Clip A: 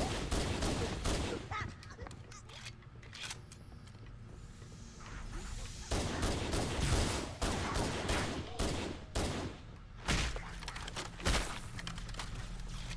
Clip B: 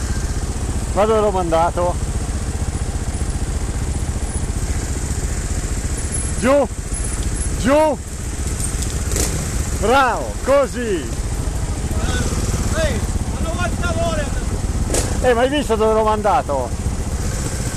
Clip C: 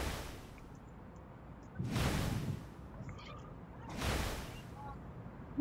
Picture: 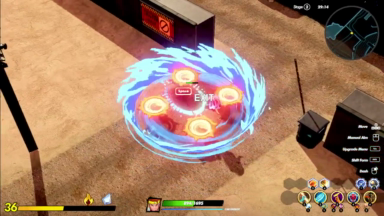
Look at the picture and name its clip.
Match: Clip C